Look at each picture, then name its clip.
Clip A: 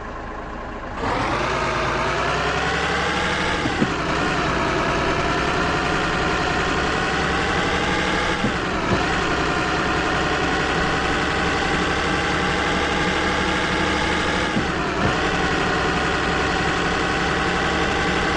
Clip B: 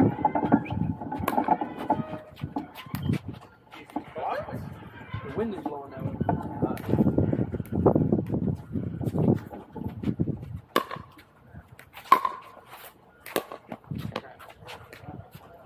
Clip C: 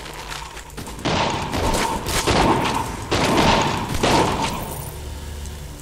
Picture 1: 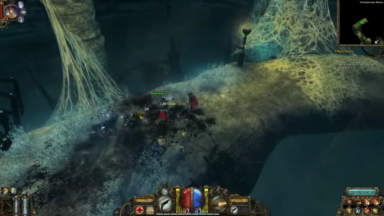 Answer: C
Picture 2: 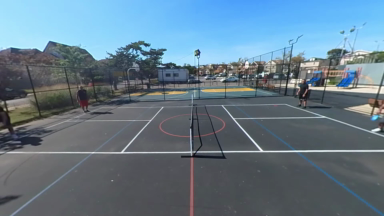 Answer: B